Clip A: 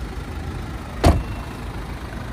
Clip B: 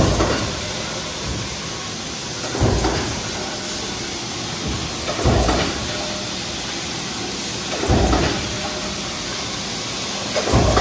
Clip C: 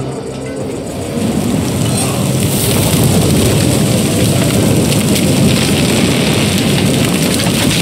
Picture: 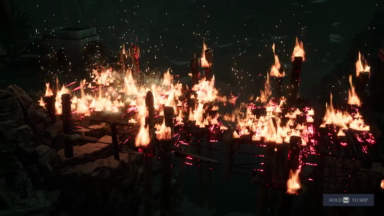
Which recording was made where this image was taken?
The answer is C